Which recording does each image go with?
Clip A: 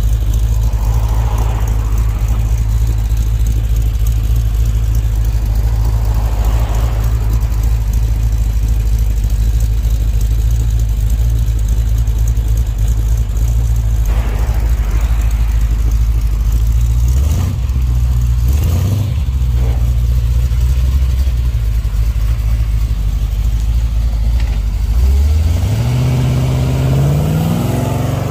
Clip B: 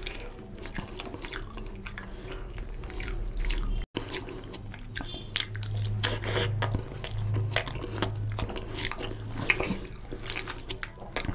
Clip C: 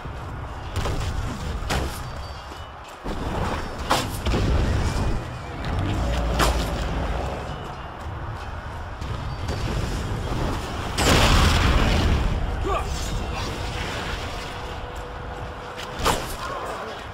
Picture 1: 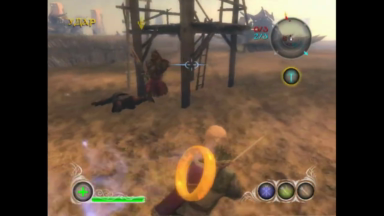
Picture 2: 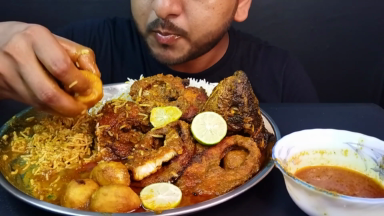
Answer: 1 C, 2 B